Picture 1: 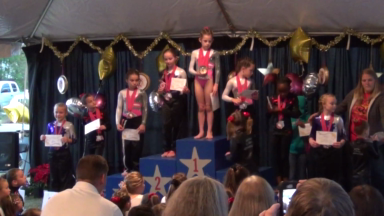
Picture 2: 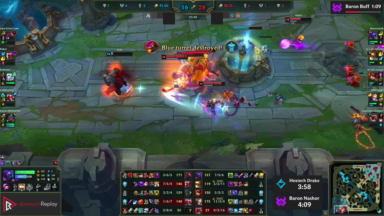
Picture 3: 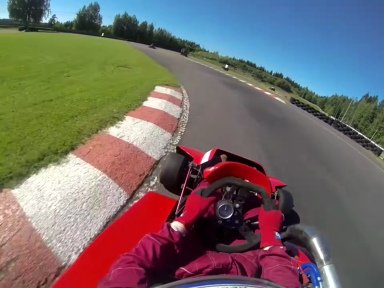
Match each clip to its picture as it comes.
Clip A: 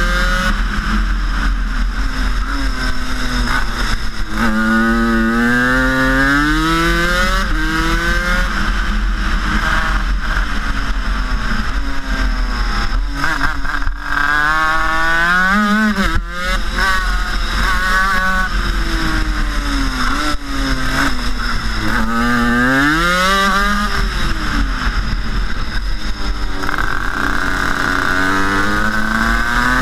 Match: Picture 3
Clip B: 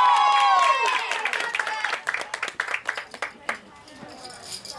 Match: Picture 1